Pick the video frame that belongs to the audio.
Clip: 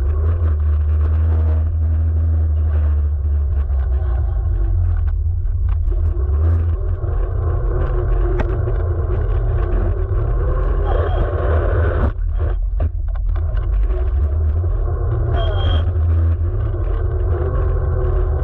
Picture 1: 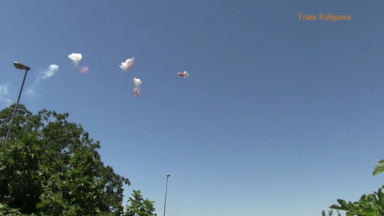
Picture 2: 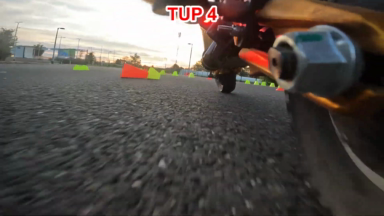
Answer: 2